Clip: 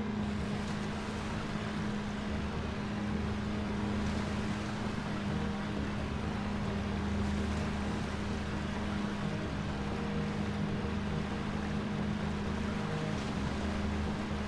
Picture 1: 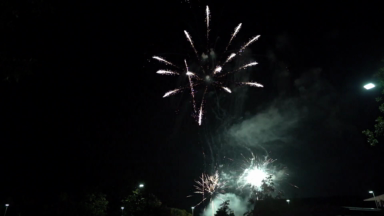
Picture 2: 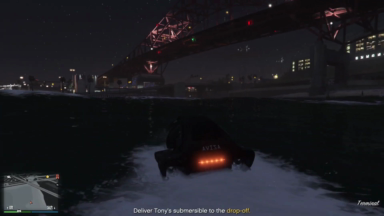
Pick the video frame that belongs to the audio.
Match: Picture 2